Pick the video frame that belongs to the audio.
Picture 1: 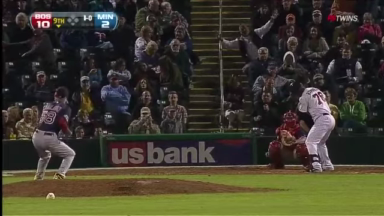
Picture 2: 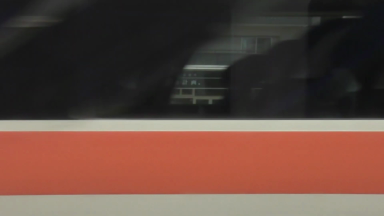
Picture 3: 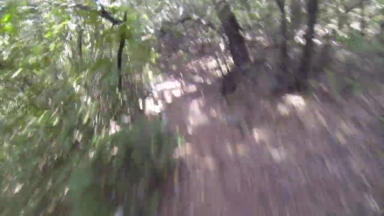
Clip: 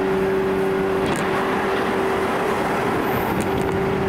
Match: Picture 2